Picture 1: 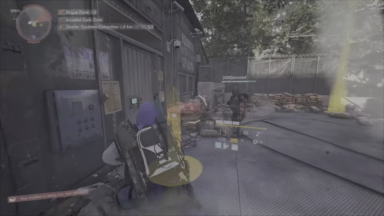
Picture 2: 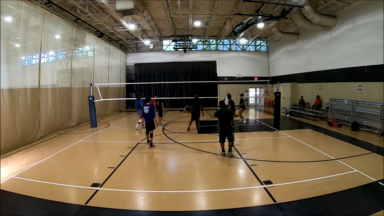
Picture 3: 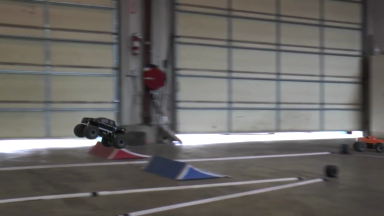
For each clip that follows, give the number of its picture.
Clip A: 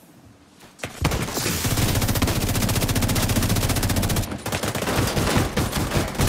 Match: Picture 1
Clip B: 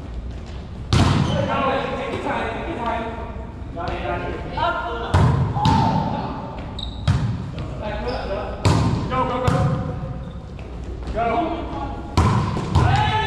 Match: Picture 2